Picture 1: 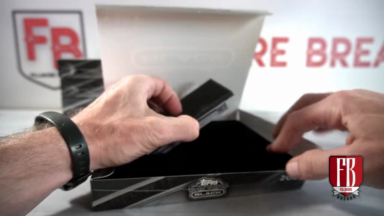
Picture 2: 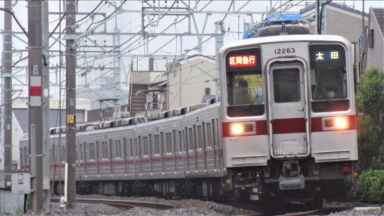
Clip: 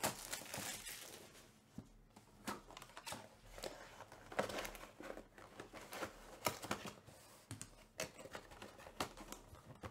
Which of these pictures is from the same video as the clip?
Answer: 1